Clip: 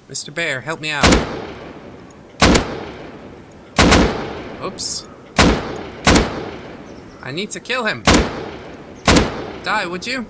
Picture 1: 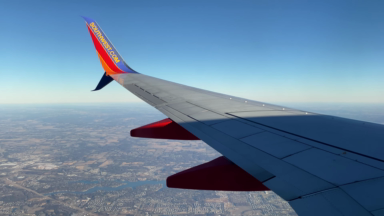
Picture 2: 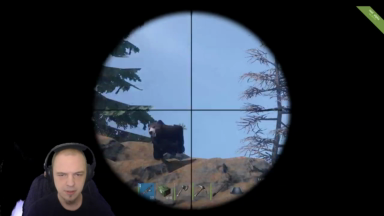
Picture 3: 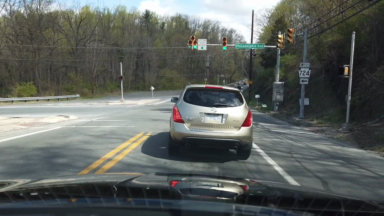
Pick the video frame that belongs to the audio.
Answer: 2